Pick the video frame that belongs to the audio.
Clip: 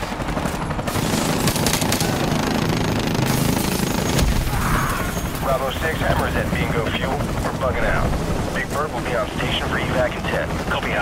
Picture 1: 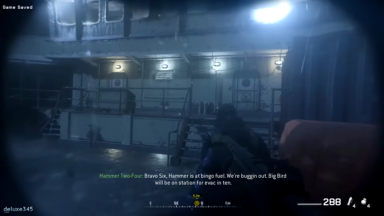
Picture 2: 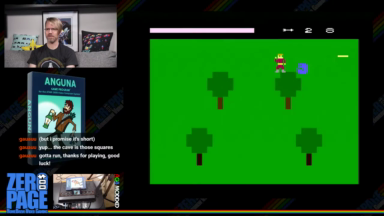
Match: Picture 1